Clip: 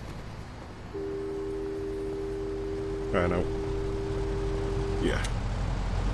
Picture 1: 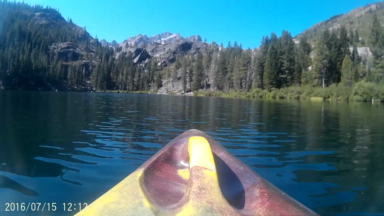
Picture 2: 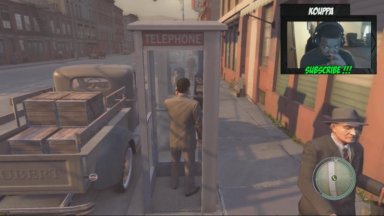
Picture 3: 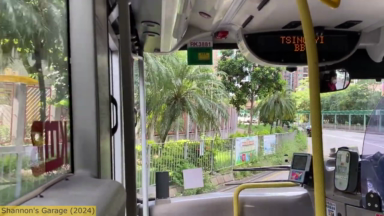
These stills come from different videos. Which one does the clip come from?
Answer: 2